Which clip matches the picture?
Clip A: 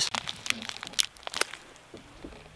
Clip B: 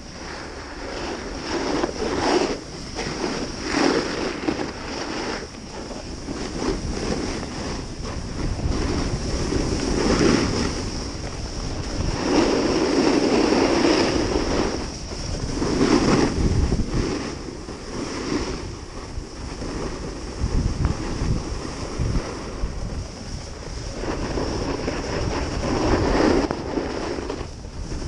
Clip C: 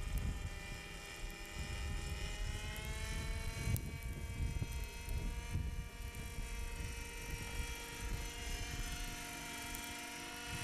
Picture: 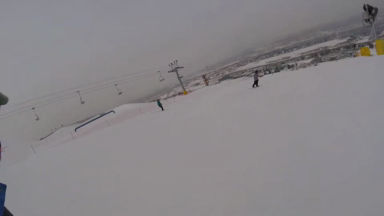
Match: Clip B